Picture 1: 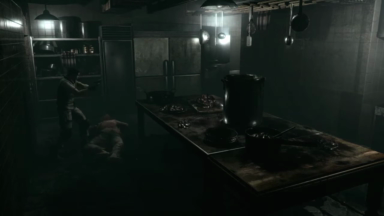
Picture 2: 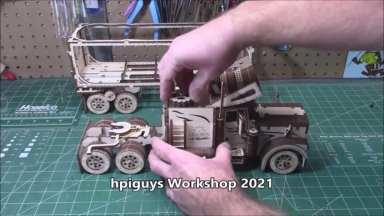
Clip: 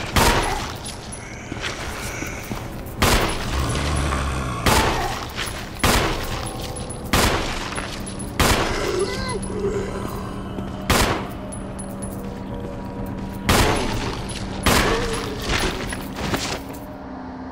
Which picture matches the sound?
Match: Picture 1